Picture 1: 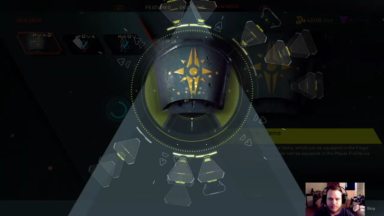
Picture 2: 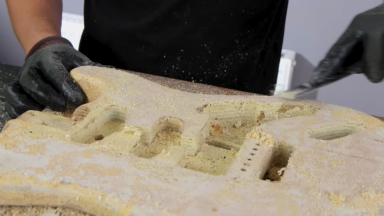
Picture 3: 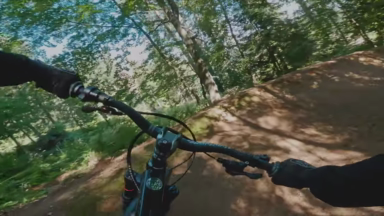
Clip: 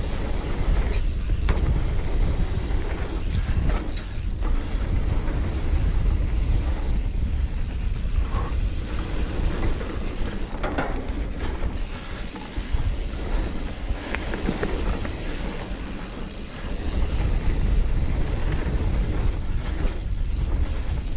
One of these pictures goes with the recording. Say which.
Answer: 3